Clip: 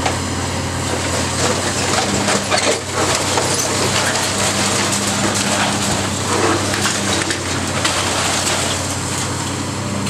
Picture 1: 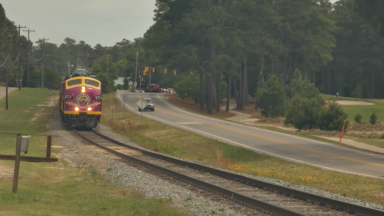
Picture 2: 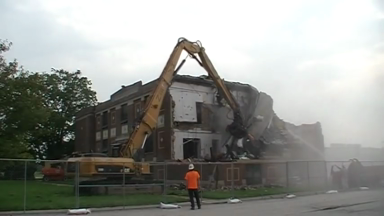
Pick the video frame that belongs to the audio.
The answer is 2